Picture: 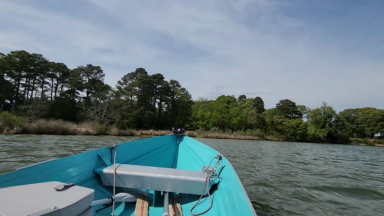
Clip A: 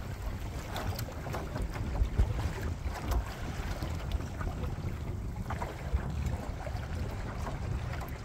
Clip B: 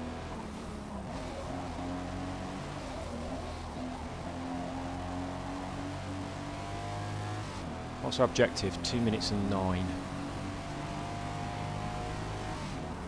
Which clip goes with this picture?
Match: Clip A